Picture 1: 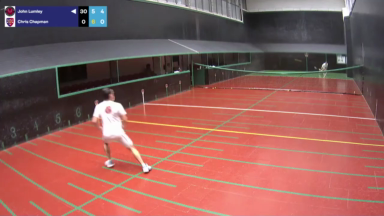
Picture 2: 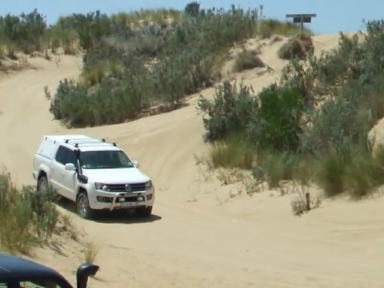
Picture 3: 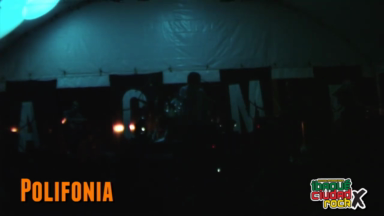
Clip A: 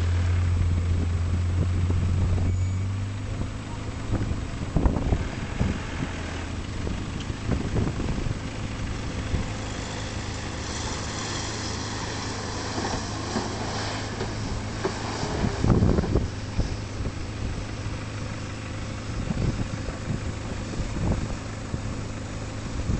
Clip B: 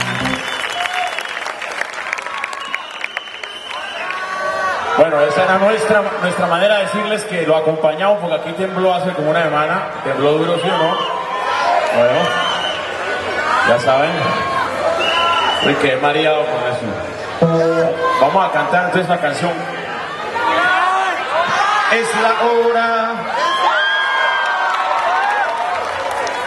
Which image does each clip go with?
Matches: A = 2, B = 3